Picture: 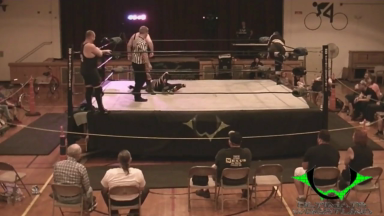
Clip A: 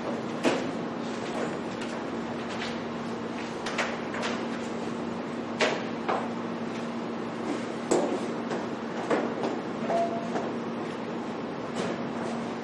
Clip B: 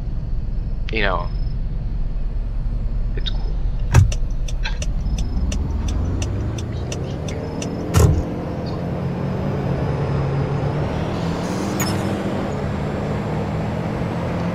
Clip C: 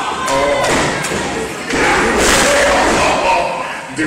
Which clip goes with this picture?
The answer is C